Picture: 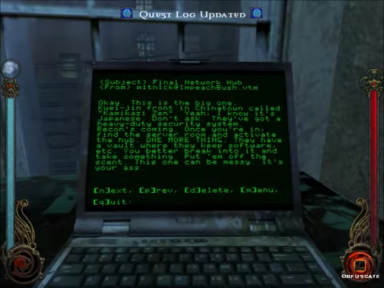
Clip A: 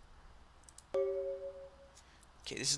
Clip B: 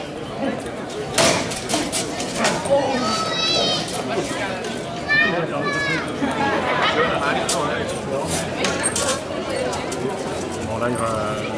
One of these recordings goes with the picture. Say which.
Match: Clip A